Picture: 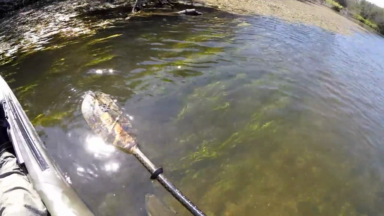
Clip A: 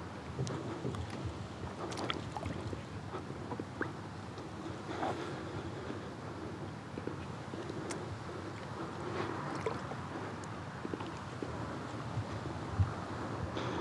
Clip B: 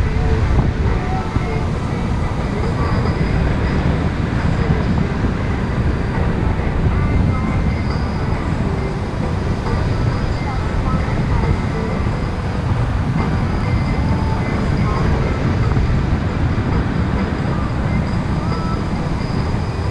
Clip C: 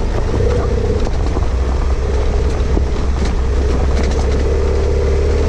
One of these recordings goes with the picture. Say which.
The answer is A